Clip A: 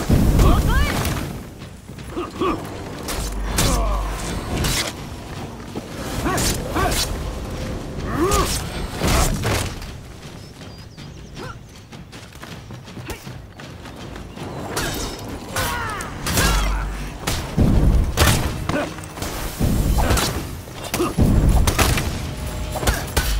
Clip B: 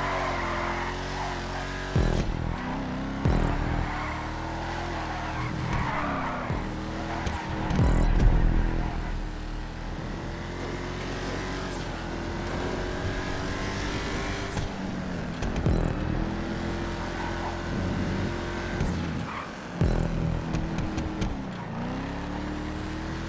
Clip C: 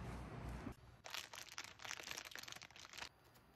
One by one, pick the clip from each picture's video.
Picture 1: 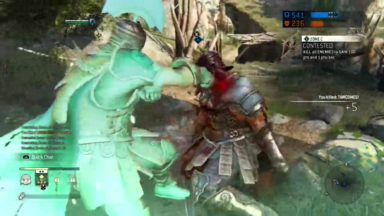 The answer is A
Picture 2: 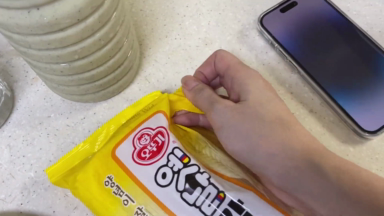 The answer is C